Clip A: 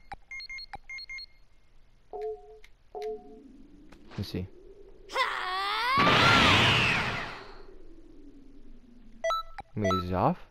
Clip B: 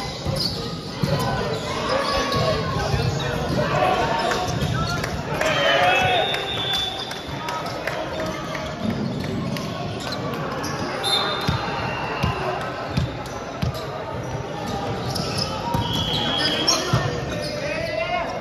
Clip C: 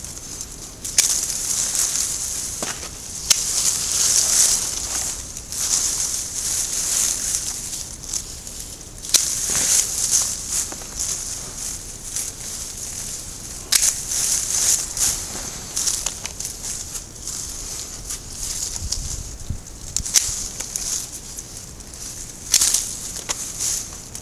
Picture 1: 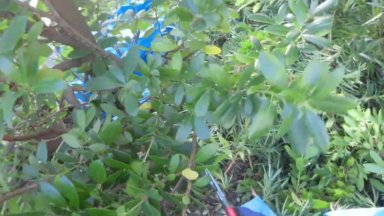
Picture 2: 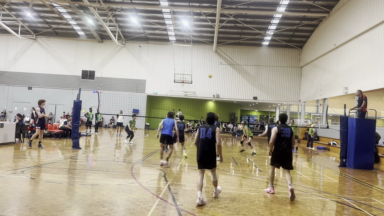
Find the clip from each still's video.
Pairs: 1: C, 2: B